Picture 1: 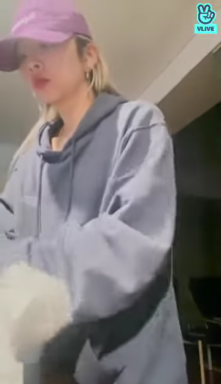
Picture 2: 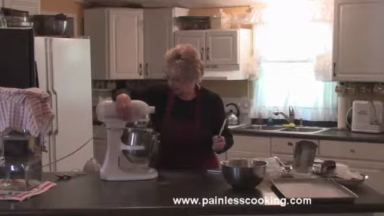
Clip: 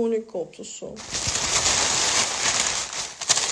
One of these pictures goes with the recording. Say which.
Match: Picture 1